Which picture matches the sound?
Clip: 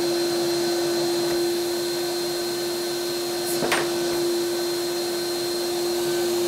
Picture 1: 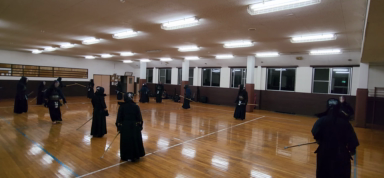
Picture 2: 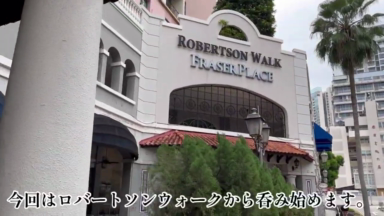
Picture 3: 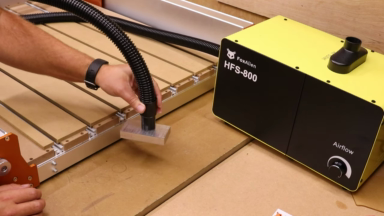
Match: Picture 3